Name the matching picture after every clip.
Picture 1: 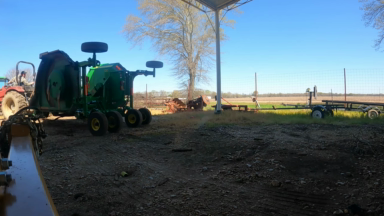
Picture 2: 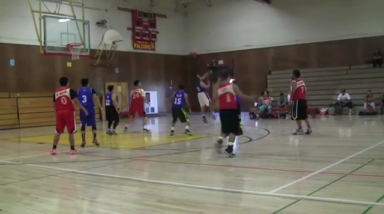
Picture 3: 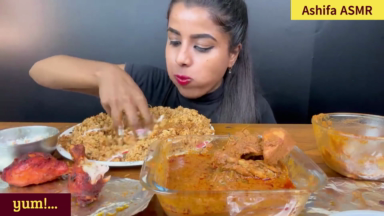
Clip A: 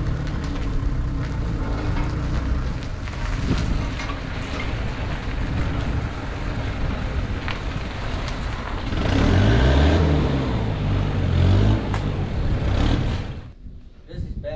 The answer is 1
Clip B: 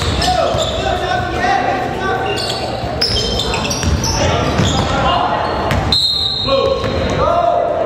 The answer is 2